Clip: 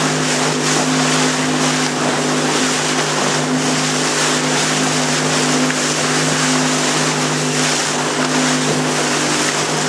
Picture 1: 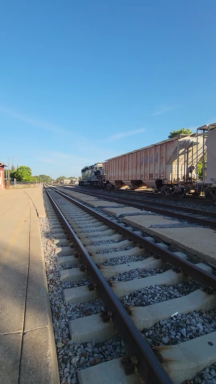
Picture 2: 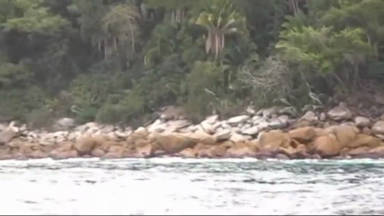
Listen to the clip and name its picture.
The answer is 2